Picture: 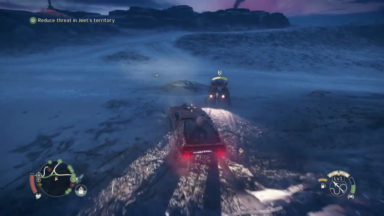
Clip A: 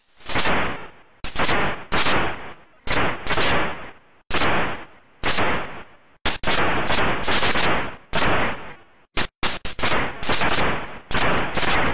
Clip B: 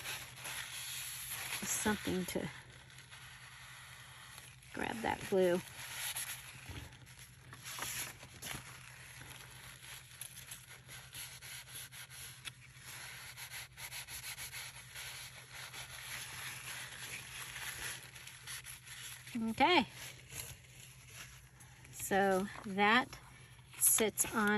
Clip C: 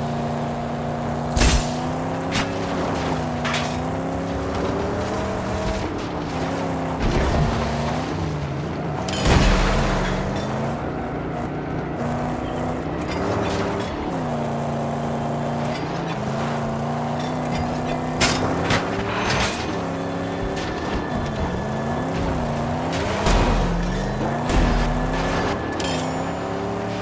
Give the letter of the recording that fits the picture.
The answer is C